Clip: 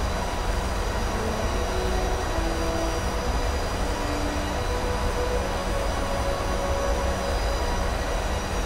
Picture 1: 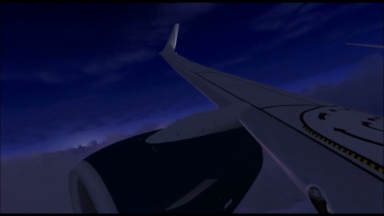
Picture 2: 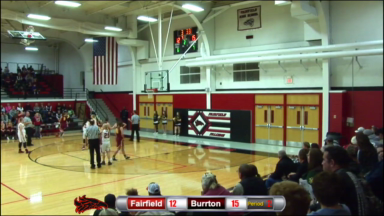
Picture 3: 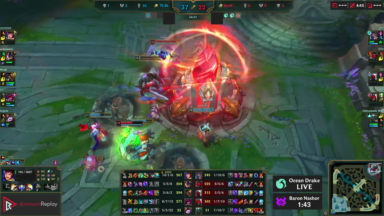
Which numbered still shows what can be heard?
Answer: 1